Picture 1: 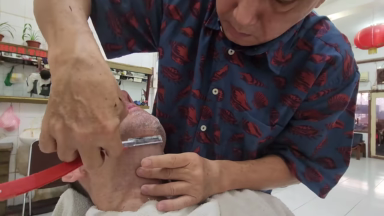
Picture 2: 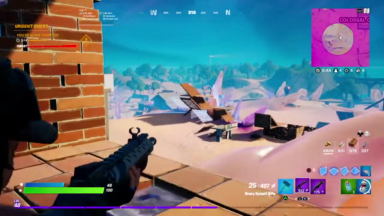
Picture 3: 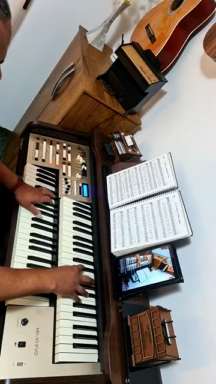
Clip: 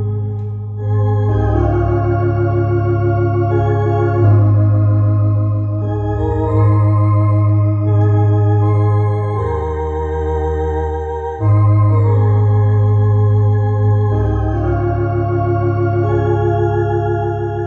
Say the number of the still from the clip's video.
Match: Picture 3